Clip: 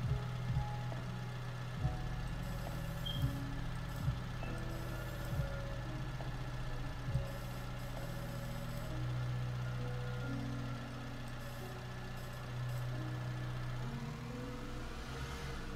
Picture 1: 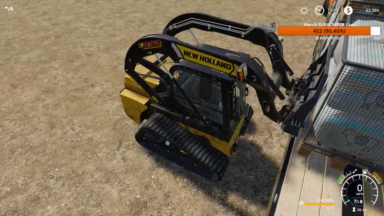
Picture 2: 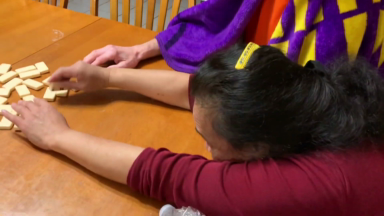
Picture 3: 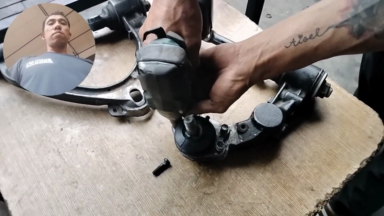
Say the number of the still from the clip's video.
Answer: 1